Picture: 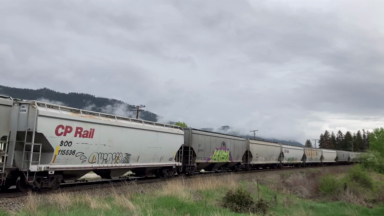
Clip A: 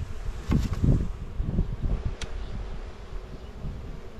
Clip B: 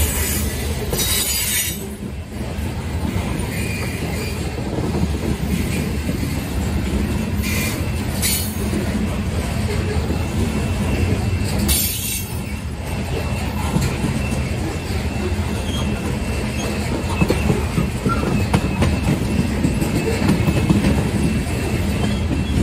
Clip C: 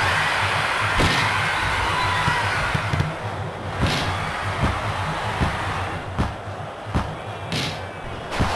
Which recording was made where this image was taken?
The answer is B